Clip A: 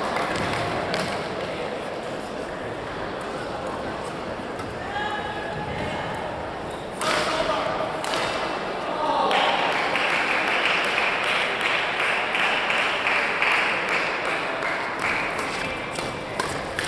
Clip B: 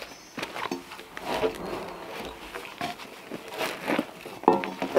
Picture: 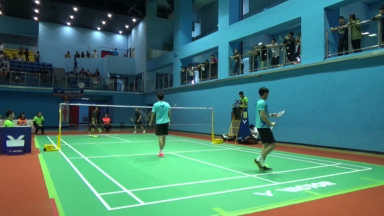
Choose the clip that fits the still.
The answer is A